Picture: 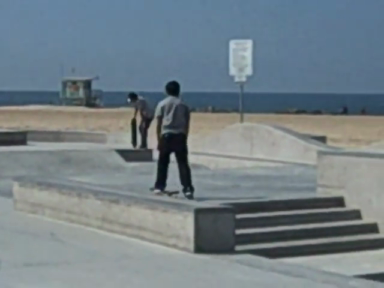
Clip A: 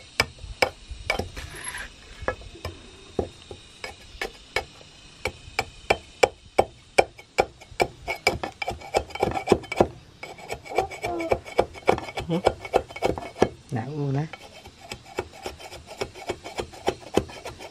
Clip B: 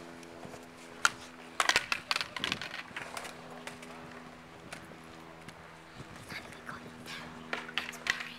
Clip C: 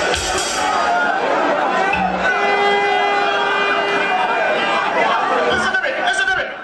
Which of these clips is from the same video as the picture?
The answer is B